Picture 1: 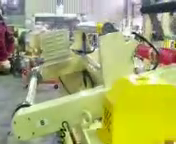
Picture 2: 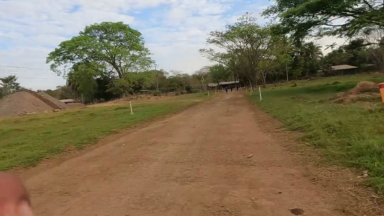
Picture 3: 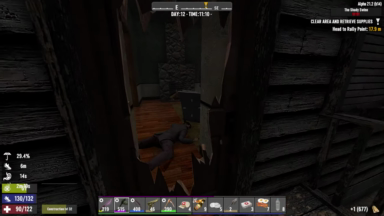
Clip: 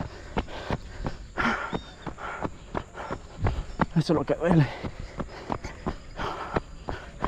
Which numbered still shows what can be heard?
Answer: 2